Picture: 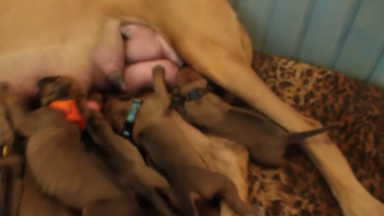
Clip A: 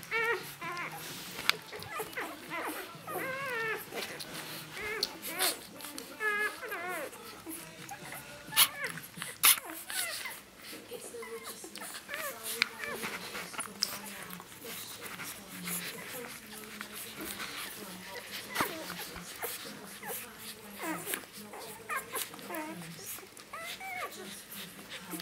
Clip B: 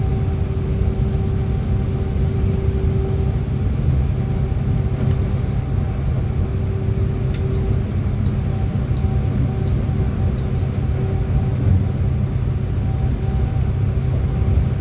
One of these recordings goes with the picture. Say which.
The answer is A